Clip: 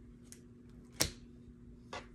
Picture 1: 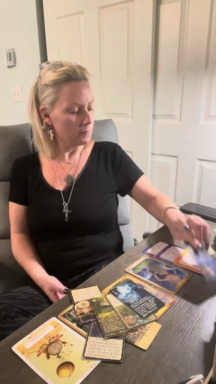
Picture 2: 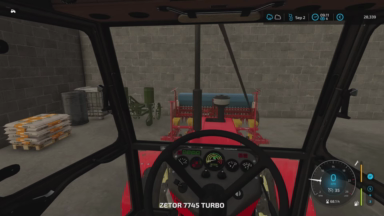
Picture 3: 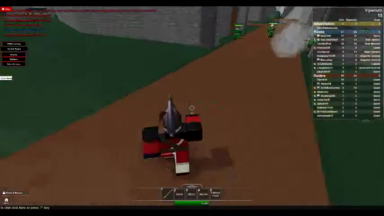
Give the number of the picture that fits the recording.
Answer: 1